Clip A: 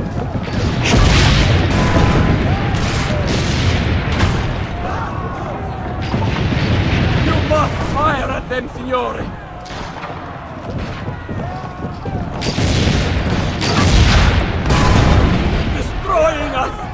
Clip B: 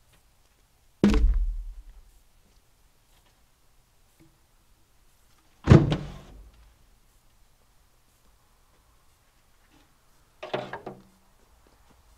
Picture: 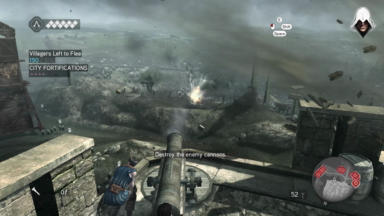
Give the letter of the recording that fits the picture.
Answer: A